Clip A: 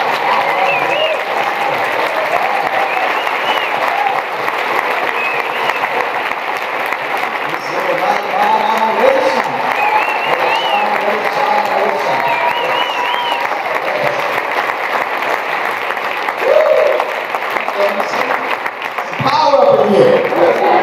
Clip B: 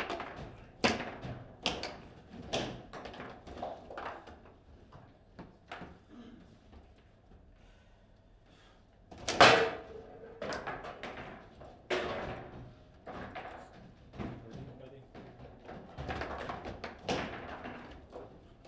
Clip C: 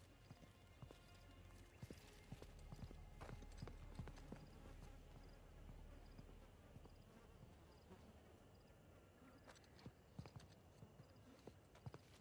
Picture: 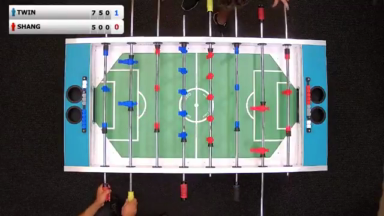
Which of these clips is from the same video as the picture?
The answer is B